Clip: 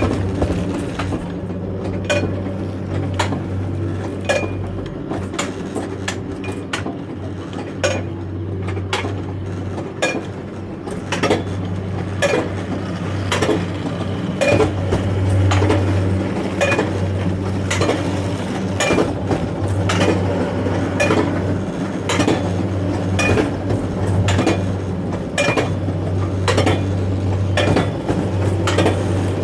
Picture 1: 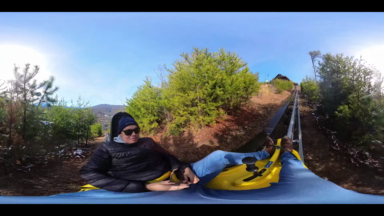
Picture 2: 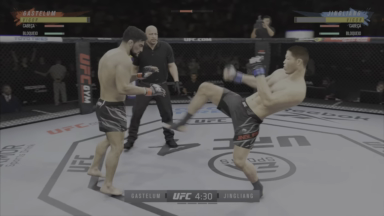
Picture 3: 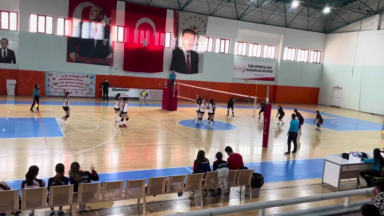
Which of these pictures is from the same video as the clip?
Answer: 1